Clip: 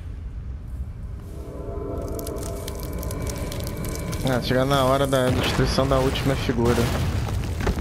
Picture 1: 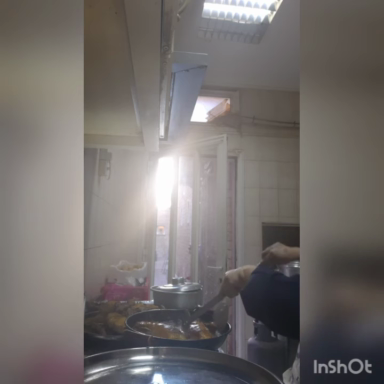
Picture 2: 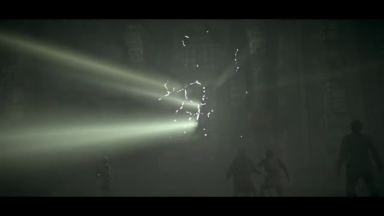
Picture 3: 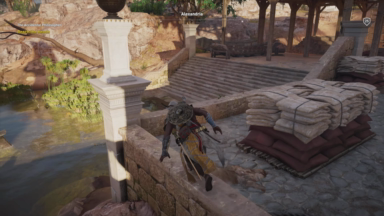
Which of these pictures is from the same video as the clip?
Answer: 2